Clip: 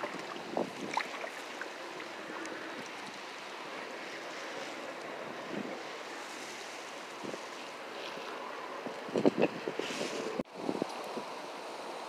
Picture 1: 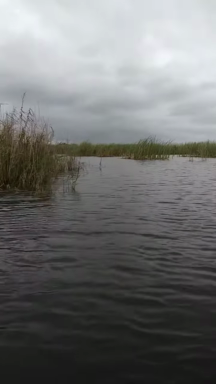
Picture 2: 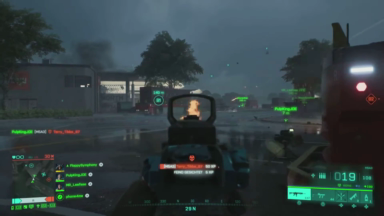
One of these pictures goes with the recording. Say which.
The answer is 1